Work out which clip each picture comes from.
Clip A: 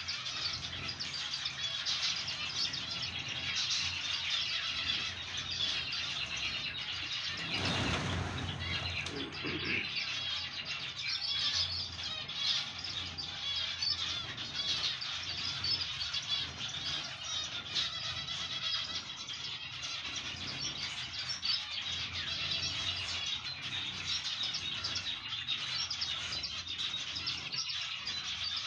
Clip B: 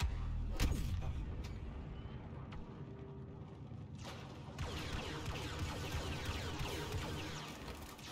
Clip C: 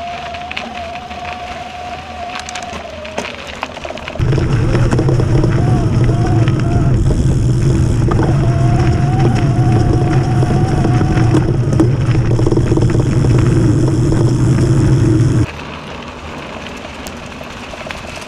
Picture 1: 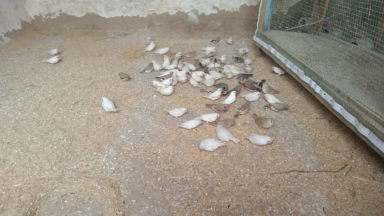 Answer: A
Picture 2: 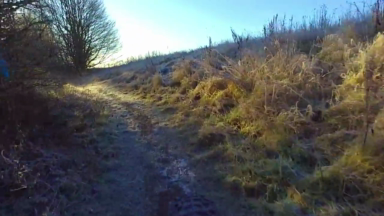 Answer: C